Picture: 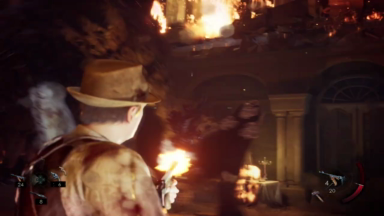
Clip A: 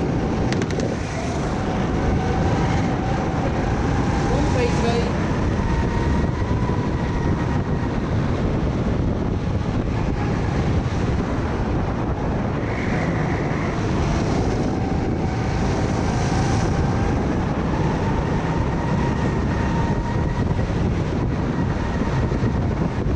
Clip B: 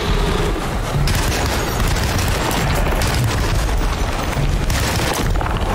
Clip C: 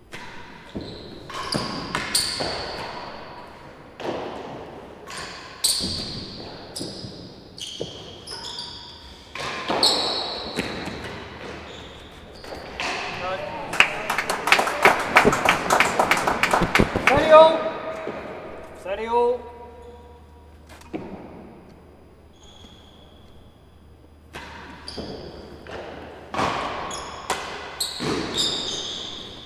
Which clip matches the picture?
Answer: B